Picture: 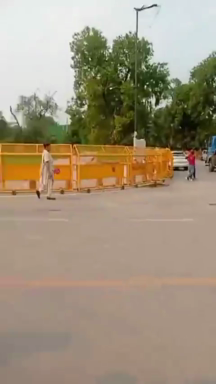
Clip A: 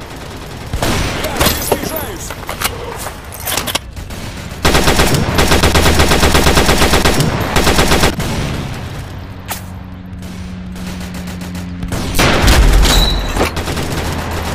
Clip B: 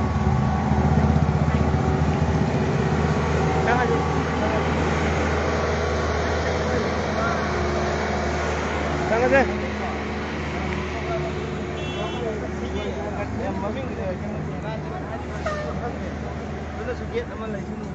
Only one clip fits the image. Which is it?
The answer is B